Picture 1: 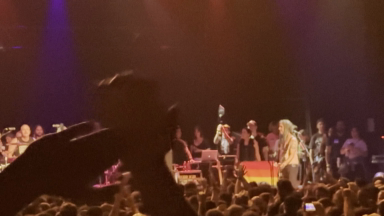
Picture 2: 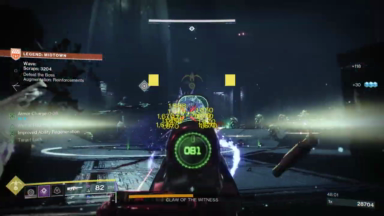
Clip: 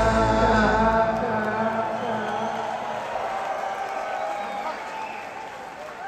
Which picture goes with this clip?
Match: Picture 1